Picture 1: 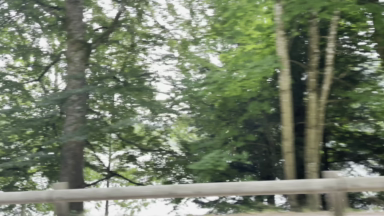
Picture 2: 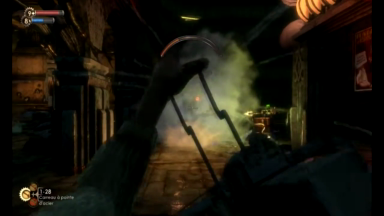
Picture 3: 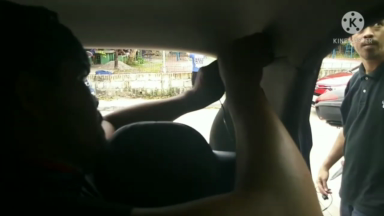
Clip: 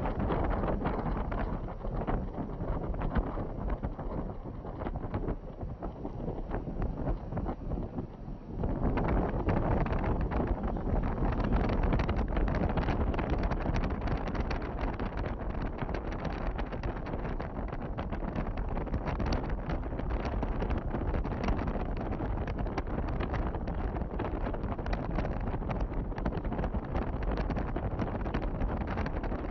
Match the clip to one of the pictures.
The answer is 1